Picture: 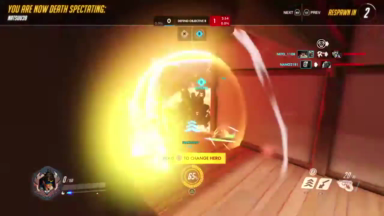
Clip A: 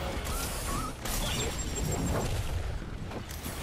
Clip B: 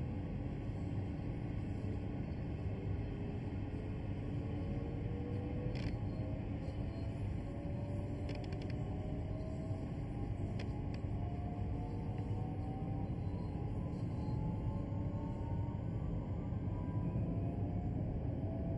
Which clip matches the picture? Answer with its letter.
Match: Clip A